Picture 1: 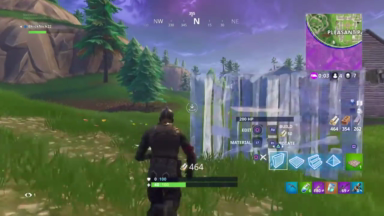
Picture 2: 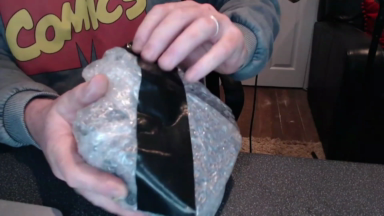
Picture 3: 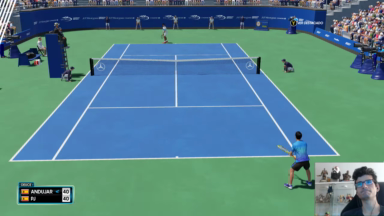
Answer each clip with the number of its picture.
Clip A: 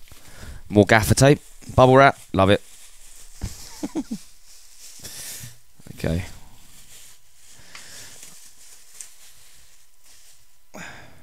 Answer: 2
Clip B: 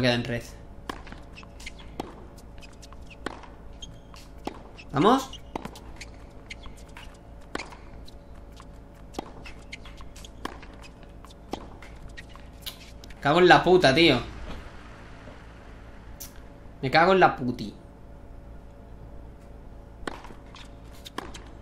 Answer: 3